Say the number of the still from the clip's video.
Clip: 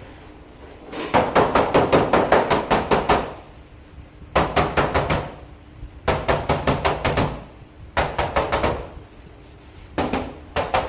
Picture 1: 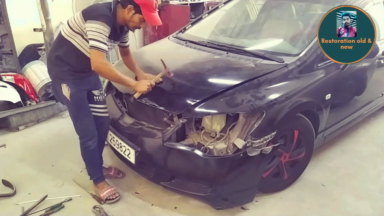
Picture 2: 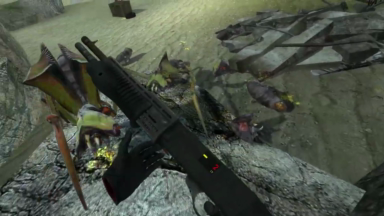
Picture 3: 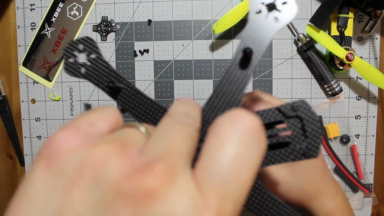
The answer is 1